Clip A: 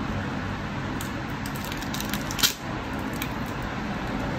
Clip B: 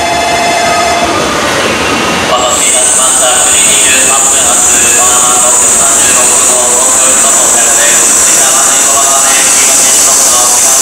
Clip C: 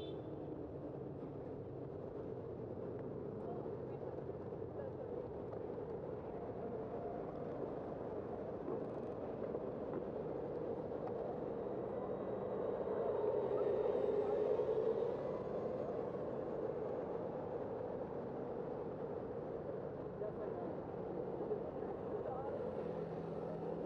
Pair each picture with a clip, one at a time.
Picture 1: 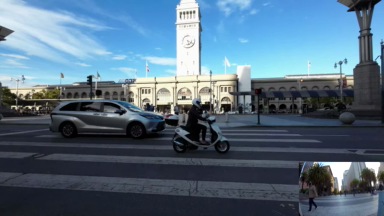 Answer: C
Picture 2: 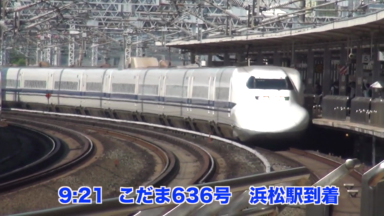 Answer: B